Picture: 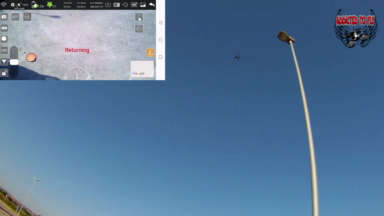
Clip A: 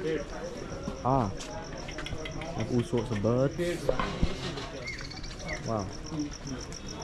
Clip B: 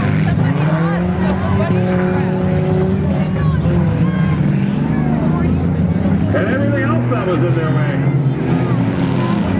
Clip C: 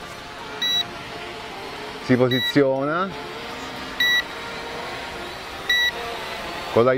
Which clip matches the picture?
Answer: C